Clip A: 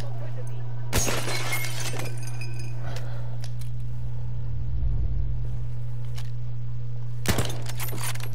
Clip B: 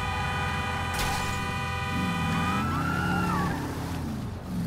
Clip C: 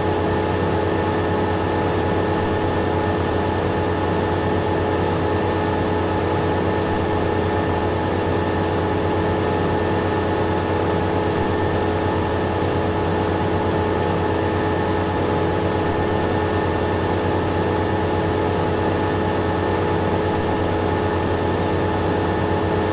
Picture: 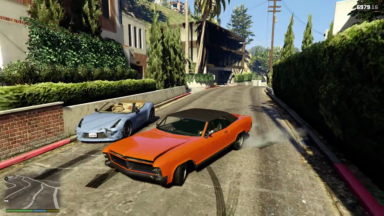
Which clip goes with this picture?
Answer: B